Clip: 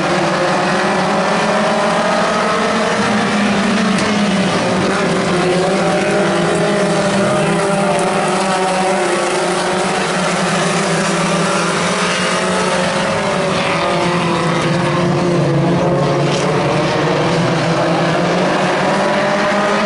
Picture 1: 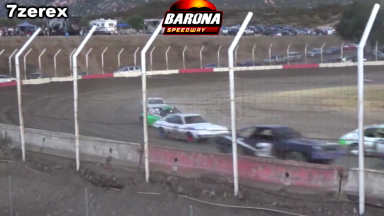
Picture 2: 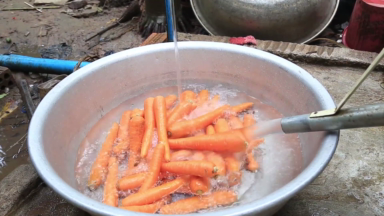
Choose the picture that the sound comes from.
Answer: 1